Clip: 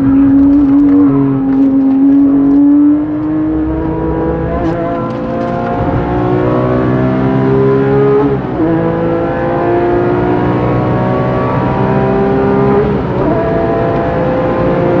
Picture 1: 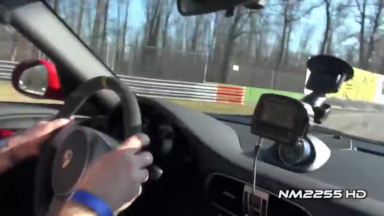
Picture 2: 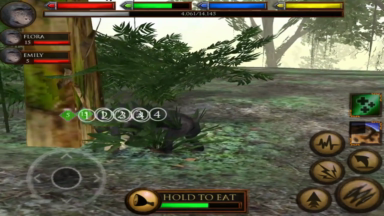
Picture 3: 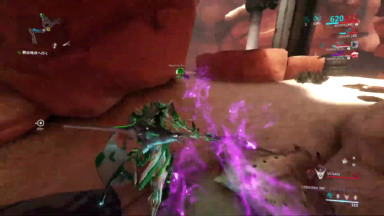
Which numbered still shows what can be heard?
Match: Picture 1